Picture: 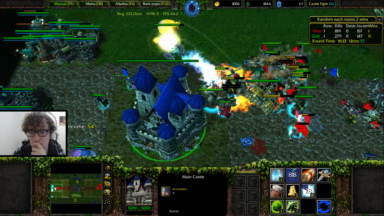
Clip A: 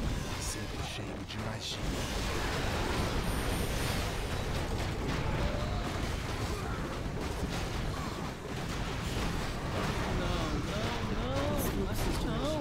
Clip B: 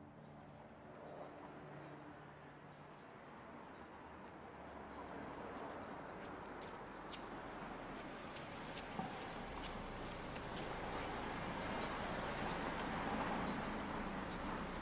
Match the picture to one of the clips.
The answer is A